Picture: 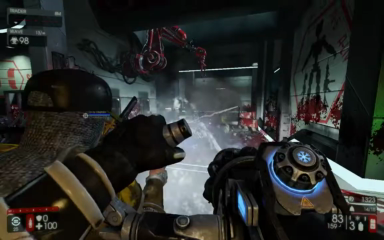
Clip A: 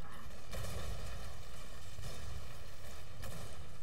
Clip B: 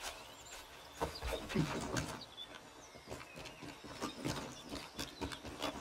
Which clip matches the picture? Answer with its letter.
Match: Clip A